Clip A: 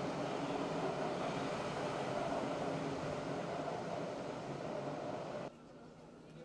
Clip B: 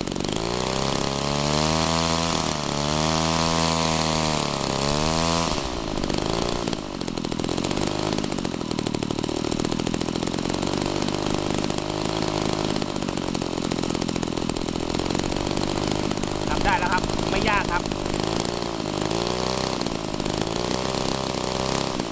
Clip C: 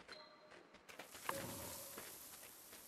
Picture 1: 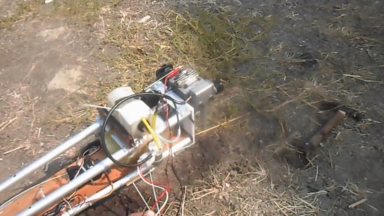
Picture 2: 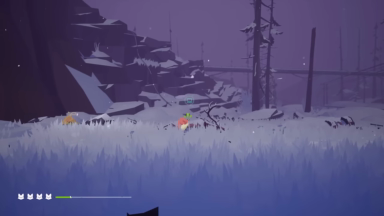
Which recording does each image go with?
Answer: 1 B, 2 C